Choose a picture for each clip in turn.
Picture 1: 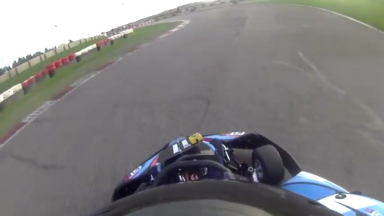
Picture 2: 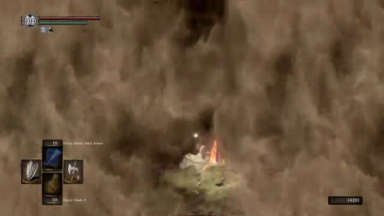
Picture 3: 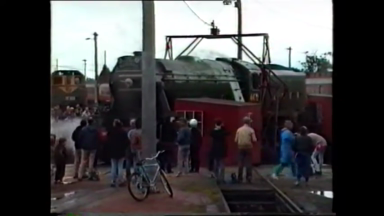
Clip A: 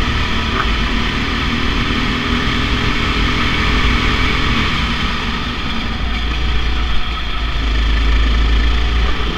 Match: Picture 1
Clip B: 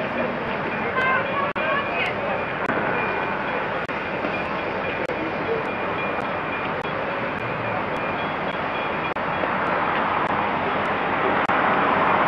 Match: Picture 3